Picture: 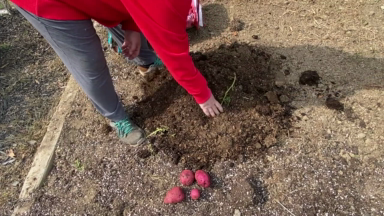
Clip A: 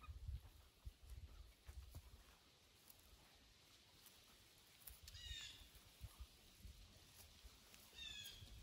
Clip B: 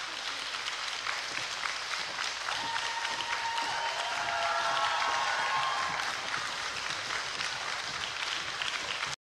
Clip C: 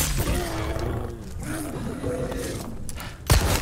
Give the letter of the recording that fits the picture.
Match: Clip A